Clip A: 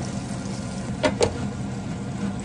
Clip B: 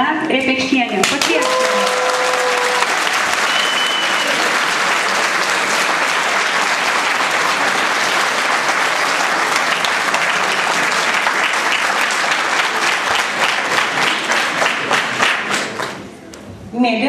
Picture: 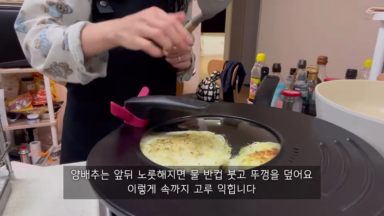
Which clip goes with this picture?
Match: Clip A